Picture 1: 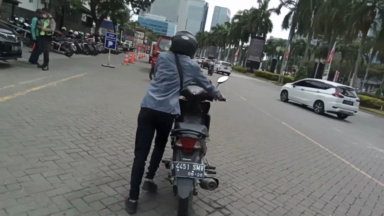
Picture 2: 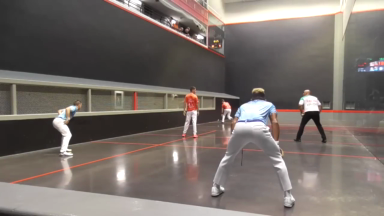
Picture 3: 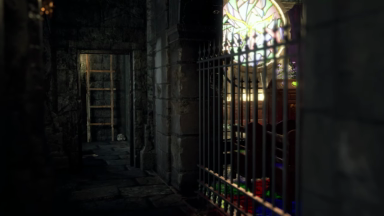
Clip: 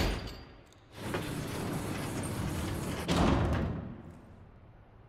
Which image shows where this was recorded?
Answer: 3